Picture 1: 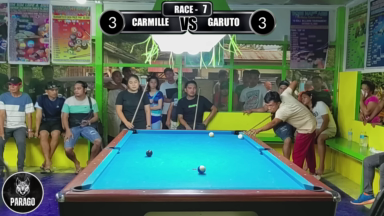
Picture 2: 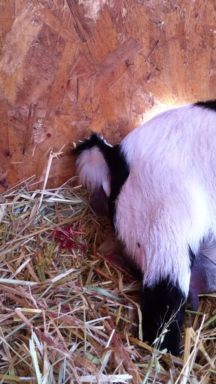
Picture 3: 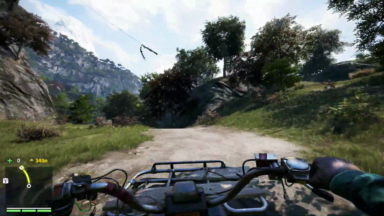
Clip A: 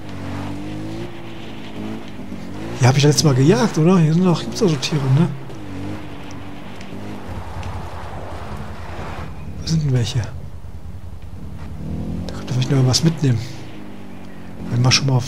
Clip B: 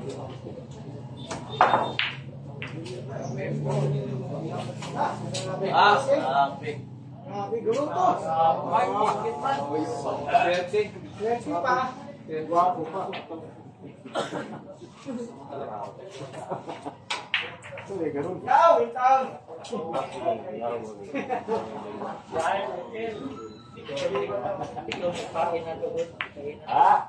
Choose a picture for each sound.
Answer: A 3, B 1